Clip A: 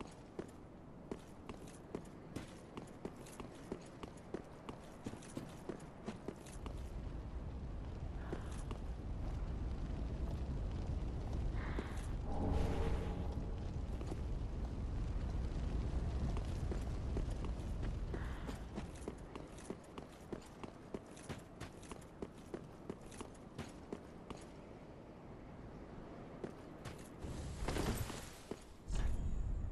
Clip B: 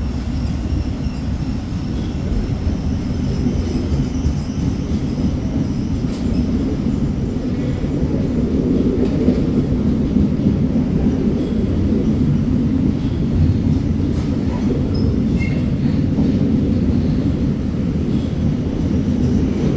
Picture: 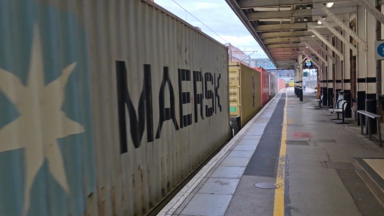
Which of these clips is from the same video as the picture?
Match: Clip B